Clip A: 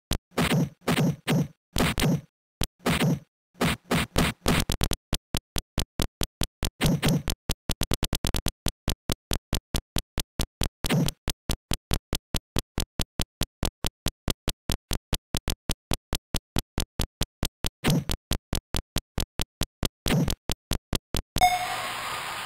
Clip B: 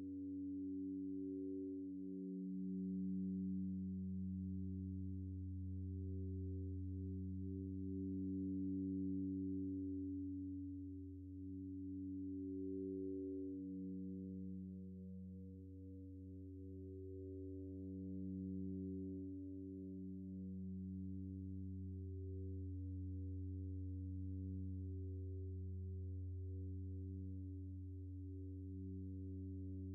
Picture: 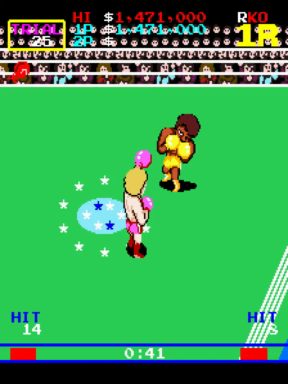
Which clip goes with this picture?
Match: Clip A